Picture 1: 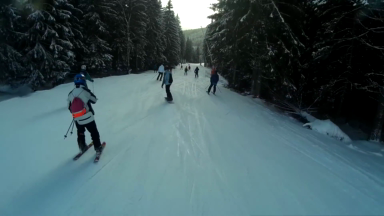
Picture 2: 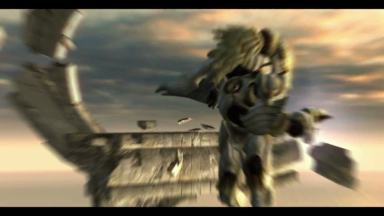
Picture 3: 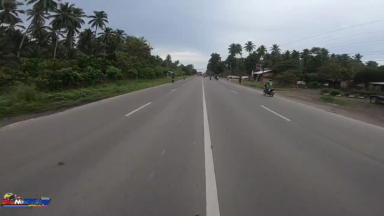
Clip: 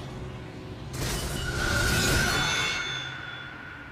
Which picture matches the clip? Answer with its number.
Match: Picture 2